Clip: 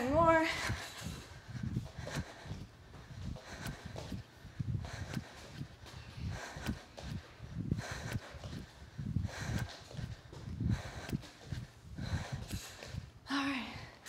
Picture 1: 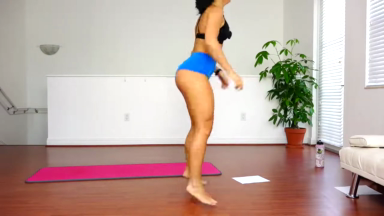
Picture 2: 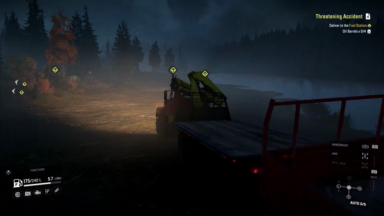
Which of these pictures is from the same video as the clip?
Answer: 1